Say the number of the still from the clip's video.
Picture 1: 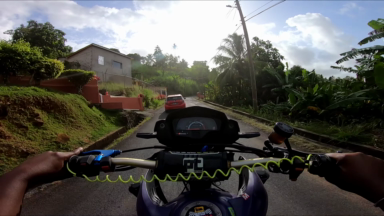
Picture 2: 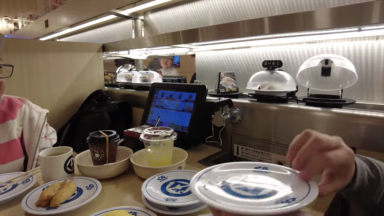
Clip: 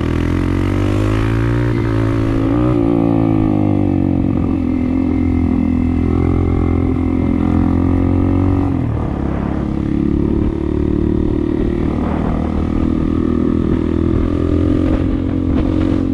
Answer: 1